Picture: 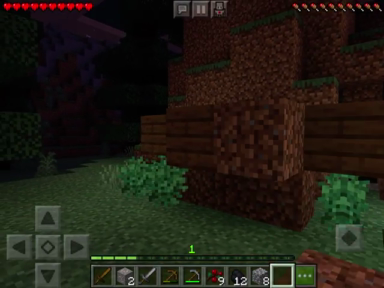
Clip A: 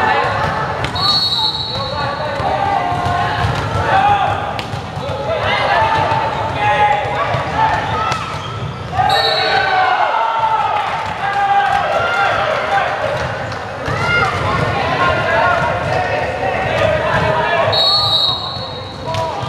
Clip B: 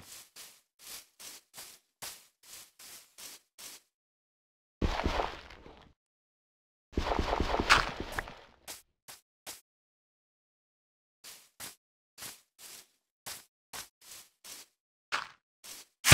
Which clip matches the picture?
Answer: B